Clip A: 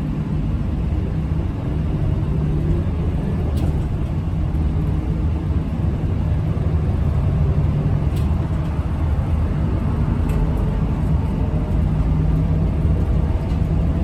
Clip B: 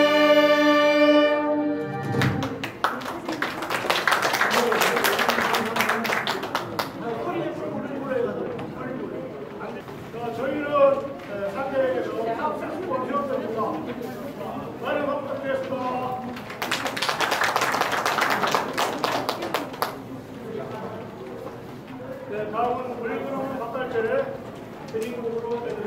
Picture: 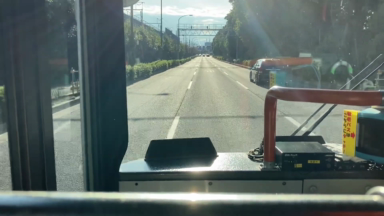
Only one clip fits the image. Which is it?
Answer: A